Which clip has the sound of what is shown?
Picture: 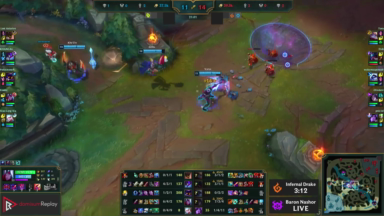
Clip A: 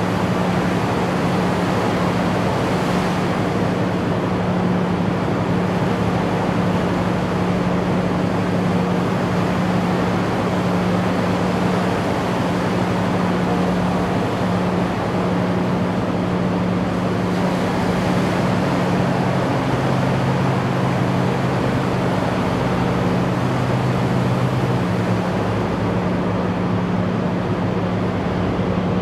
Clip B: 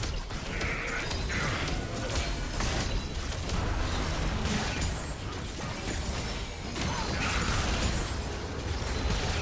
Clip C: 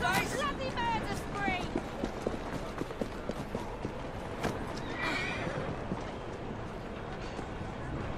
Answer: B